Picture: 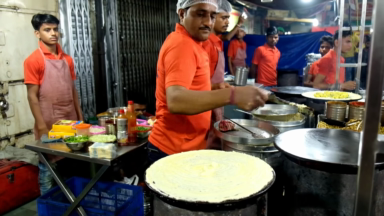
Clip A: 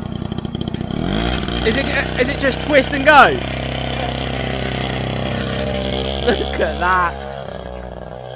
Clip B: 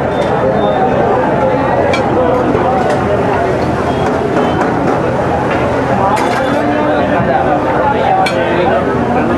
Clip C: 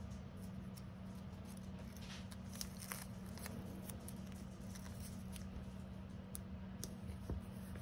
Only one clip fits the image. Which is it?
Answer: B